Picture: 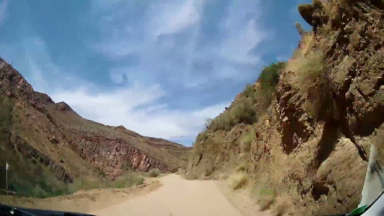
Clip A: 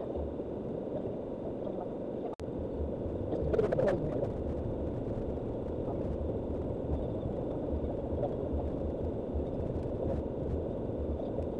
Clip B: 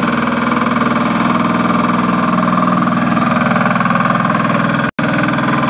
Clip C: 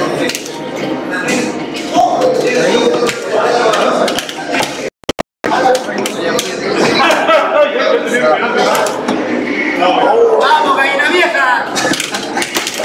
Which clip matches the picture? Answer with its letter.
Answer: A